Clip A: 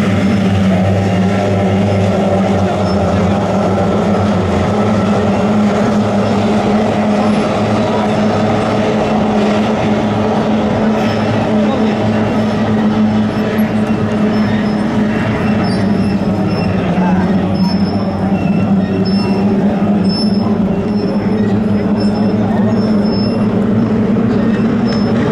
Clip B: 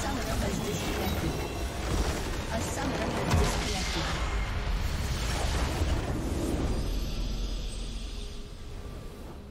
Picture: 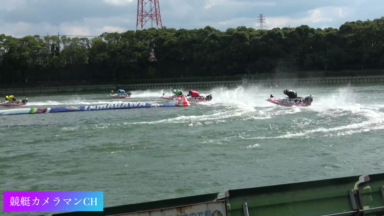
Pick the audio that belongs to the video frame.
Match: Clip A